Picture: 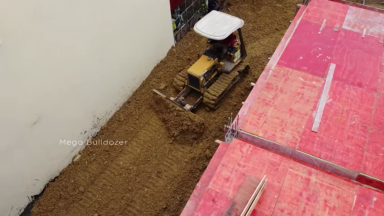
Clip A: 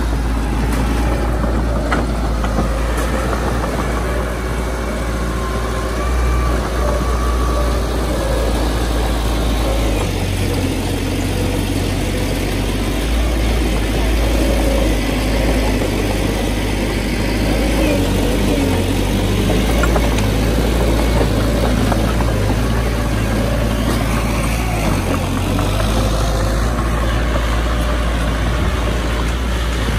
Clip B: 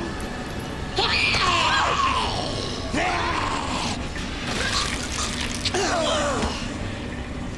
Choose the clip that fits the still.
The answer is A